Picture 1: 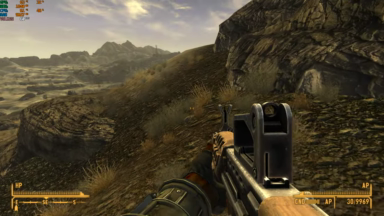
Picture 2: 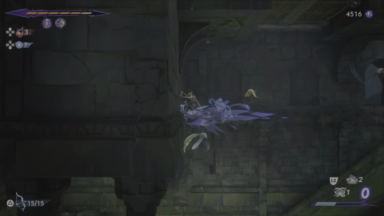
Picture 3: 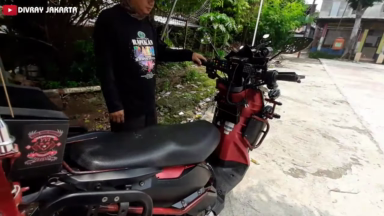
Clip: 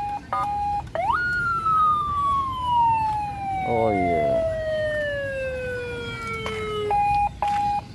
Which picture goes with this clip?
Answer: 3